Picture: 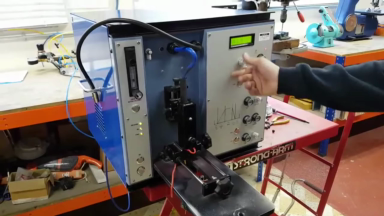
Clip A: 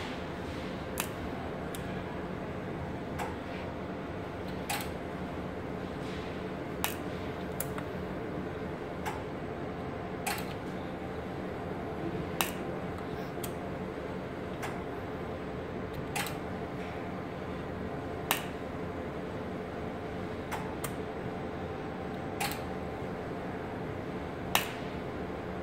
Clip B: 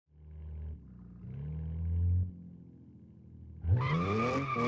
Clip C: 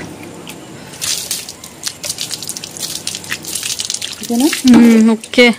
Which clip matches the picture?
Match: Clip A